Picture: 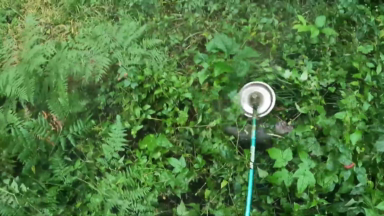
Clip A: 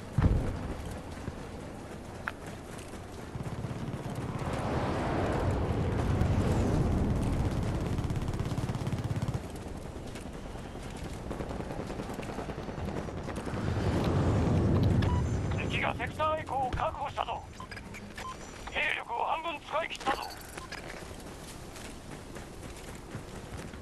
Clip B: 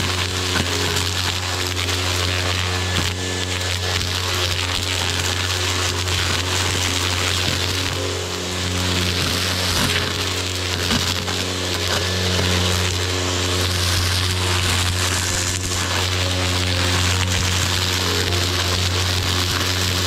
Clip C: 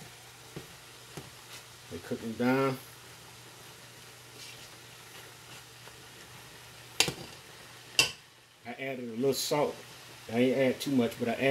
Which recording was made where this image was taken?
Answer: B